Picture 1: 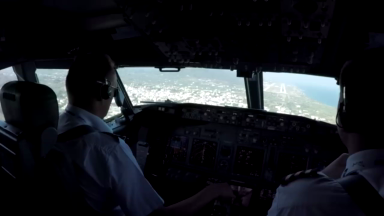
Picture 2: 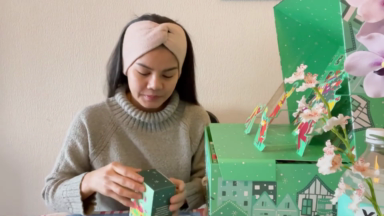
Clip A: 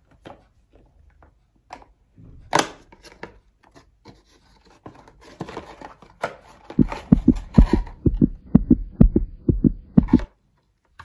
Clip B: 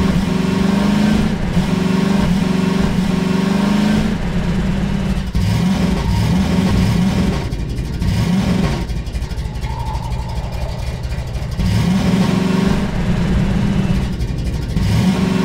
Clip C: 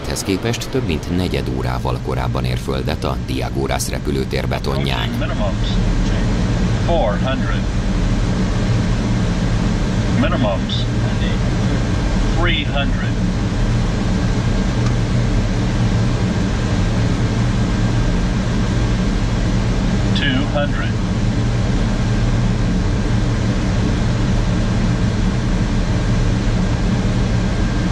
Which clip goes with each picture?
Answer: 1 C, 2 A